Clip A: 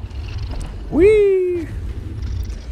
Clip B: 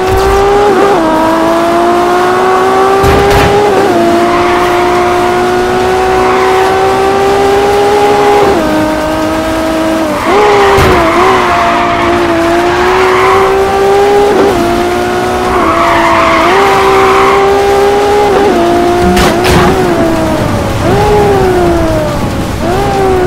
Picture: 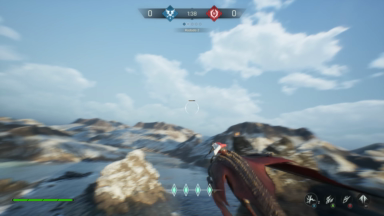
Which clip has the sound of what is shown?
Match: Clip A